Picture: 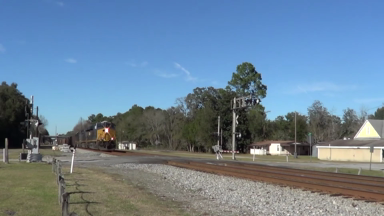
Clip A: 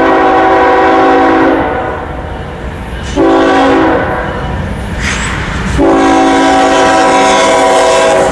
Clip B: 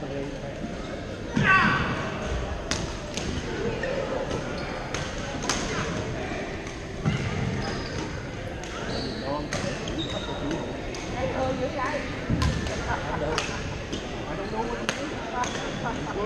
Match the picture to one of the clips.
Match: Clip A